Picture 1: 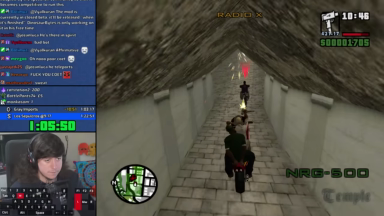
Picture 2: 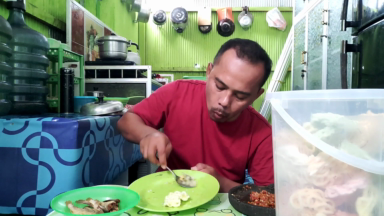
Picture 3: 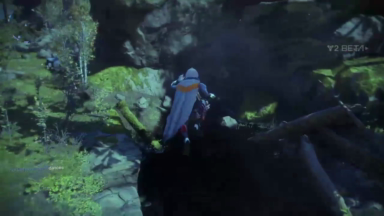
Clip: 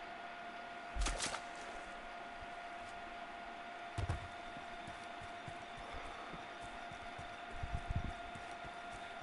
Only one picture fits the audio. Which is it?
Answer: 3